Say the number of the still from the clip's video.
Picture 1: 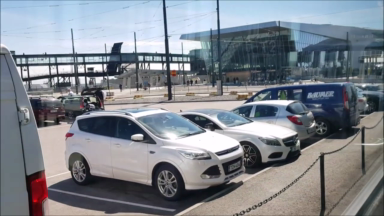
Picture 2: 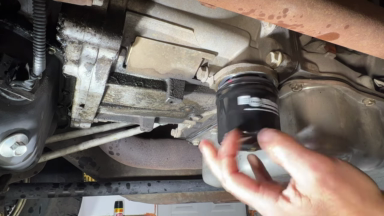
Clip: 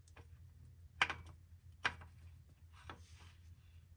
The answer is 2